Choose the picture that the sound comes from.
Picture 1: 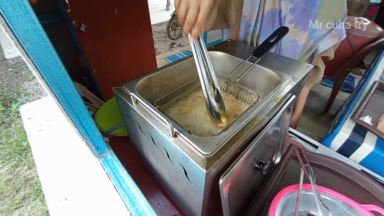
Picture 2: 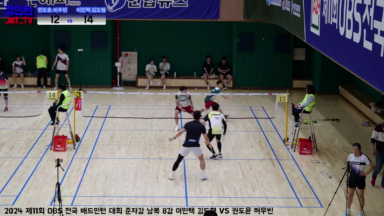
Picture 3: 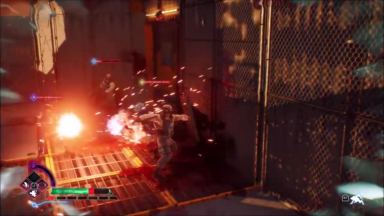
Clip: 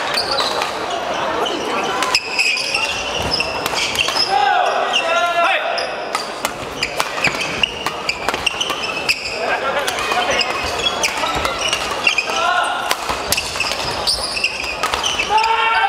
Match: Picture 2